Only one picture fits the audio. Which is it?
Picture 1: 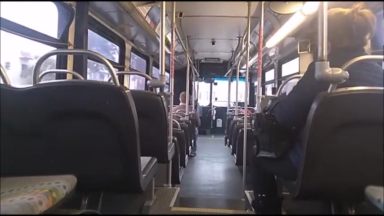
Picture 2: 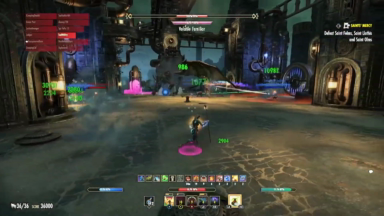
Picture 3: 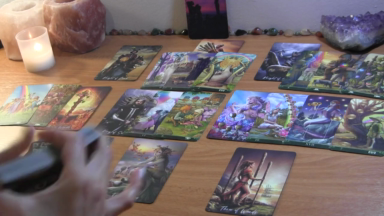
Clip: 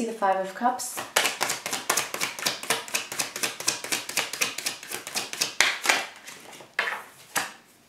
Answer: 3